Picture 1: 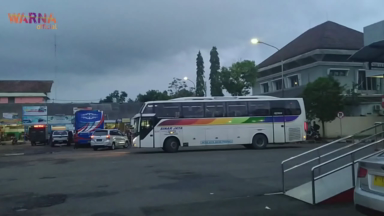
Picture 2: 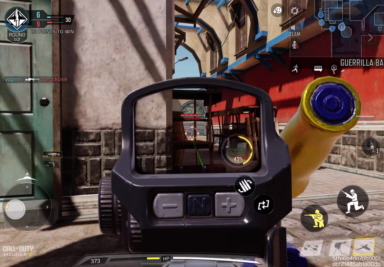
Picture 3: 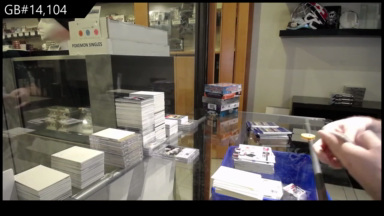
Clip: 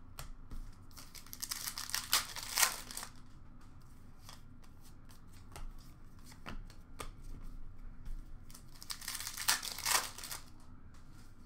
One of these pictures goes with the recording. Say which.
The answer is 3